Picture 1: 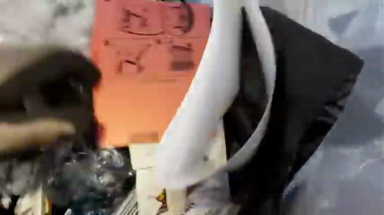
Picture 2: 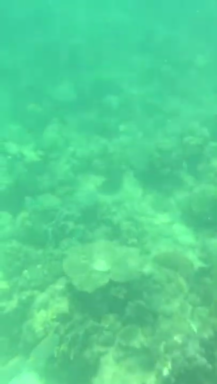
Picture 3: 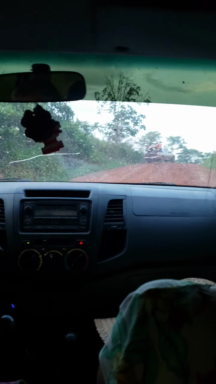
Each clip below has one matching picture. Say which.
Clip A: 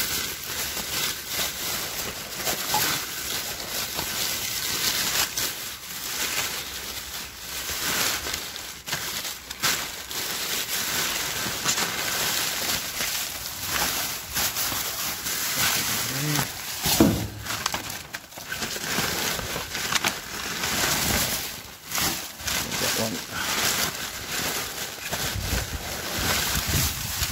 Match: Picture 1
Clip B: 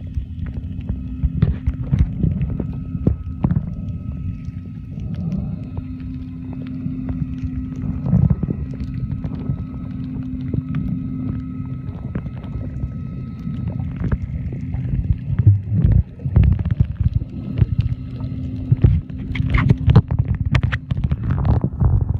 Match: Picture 2